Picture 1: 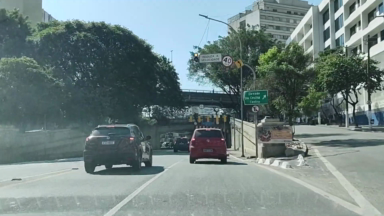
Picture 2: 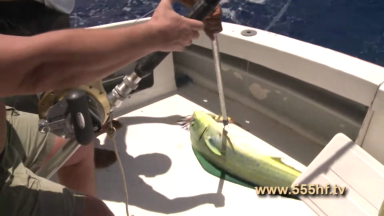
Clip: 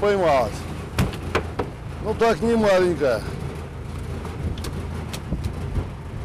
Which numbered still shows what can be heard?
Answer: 2